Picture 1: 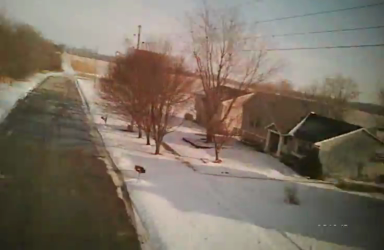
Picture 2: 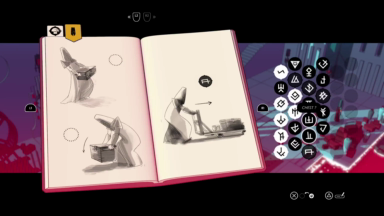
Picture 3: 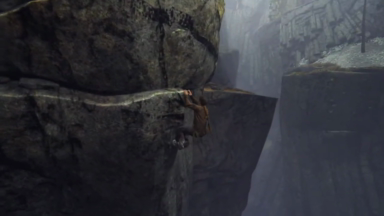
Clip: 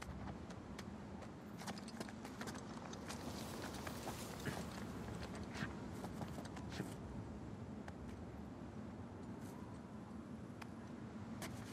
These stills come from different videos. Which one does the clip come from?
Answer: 3